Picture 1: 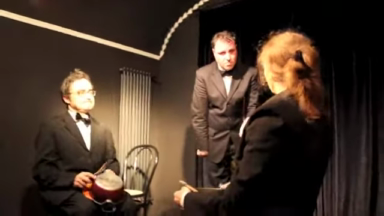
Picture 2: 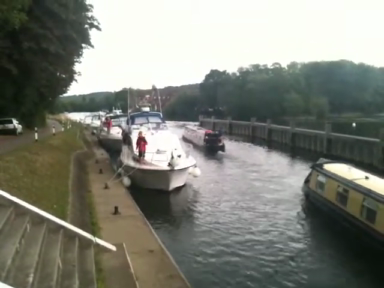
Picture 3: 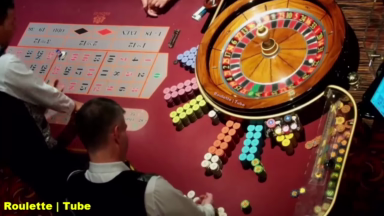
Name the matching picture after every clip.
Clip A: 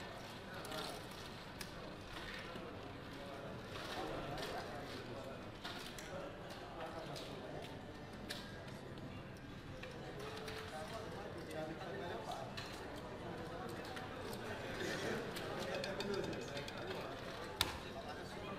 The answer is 3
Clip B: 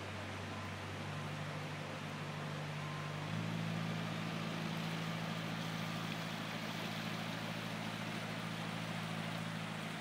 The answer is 2